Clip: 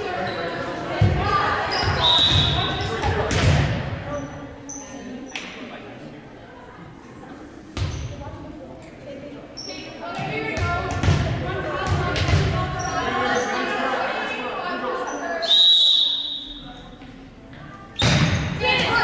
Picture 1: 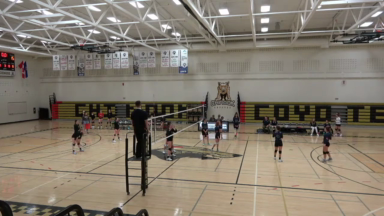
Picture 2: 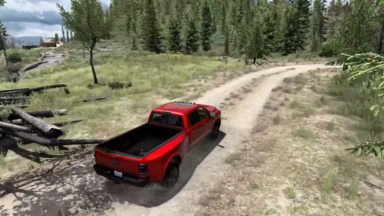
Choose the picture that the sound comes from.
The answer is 1